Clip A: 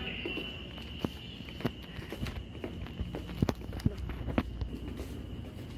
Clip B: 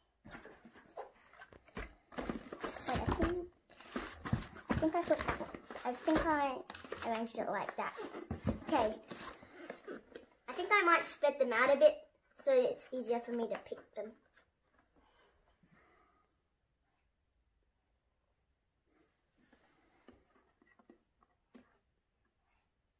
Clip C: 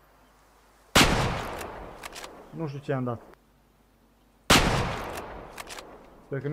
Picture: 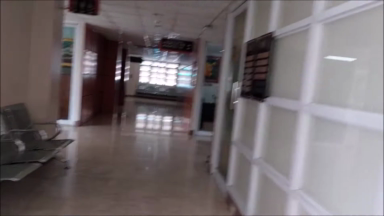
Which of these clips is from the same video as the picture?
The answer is A